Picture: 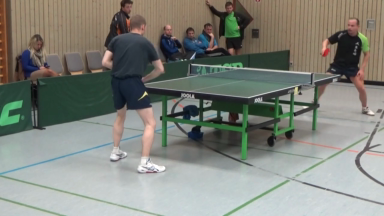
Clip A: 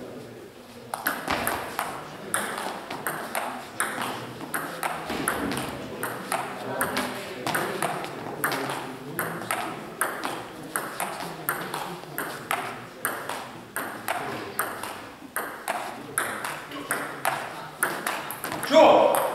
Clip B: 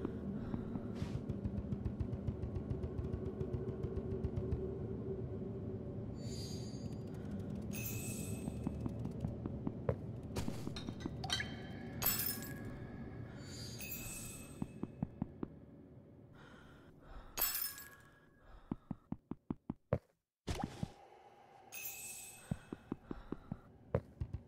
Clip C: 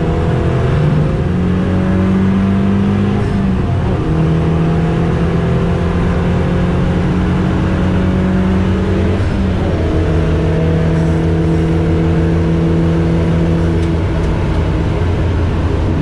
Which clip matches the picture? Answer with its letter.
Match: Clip A